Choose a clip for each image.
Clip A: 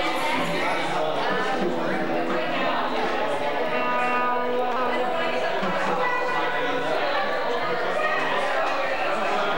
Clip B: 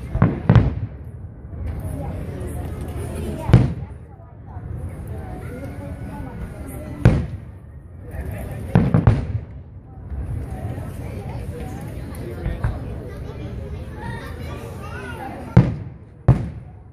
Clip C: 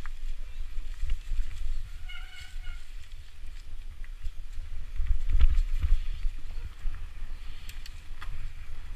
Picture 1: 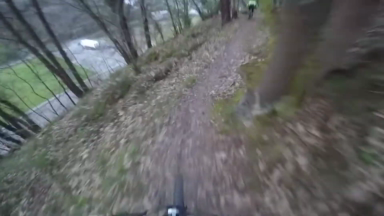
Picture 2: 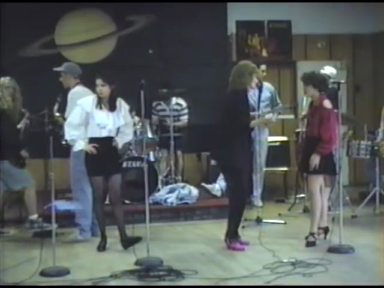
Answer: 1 C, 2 A